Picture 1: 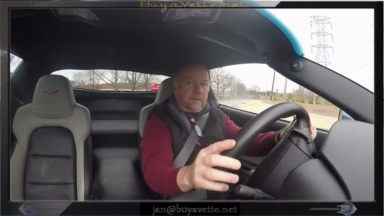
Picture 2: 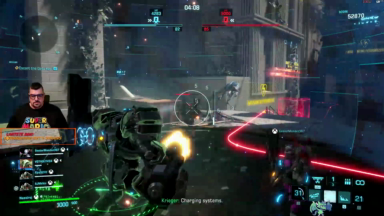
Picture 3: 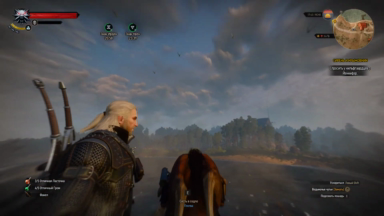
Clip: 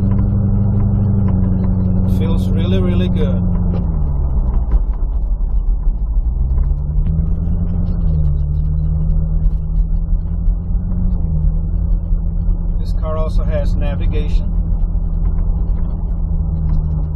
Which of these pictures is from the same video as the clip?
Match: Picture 1